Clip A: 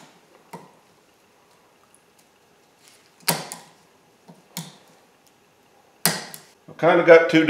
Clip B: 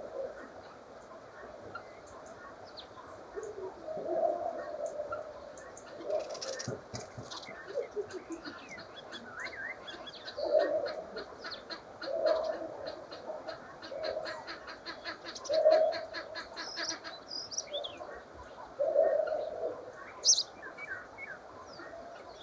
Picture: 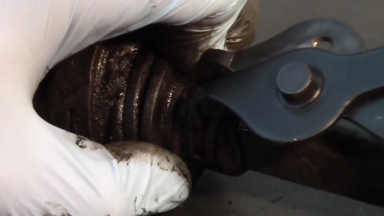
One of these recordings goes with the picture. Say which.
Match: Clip A